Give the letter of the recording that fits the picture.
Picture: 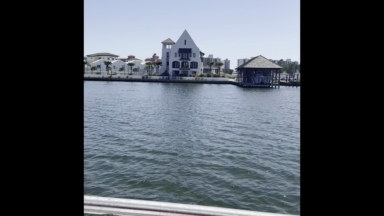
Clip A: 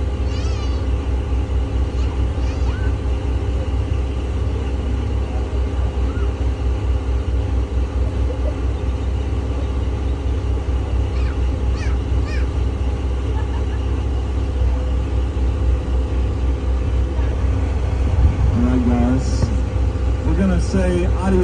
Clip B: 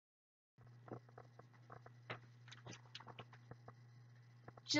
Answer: A